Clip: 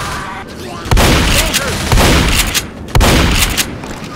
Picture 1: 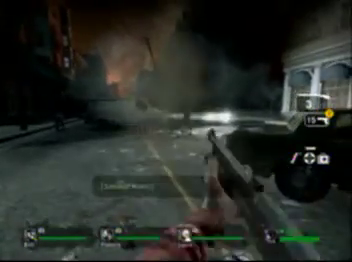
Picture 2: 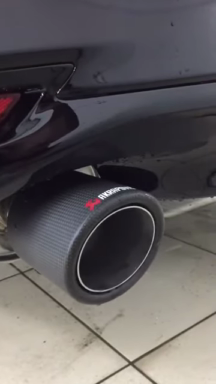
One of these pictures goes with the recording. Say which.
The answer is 1